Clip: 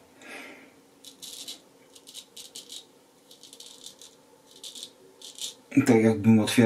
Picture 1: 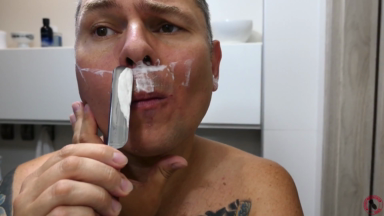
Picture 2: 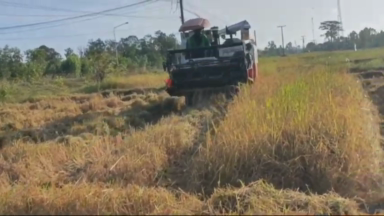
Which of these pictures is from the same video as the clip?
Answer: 1